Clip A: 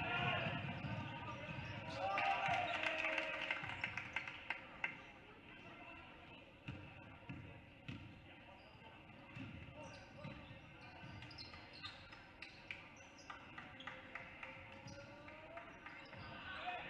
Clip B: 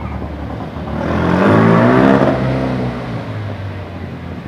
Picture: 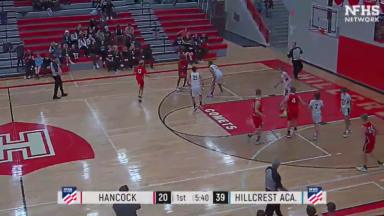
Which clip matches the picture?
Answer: A